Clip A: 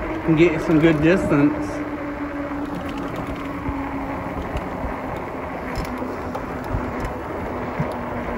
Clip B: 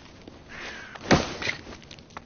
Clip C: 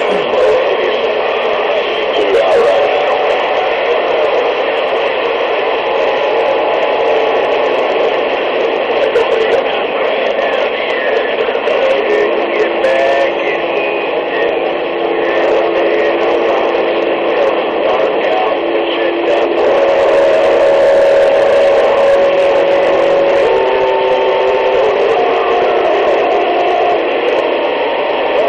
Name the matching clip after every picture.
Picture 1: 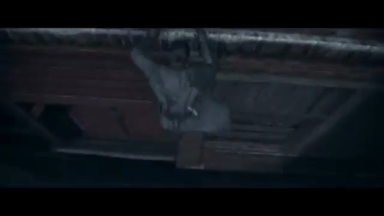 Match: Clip B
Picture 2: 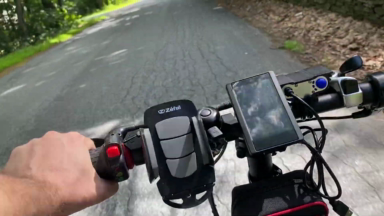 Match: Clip A